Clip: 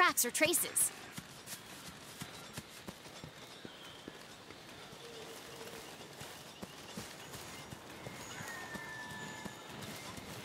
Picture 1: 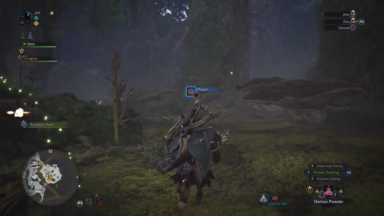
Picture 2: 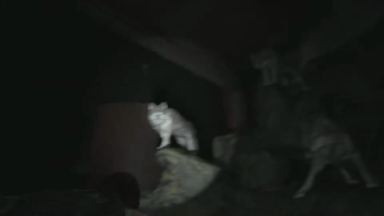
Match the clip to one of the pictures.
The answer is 1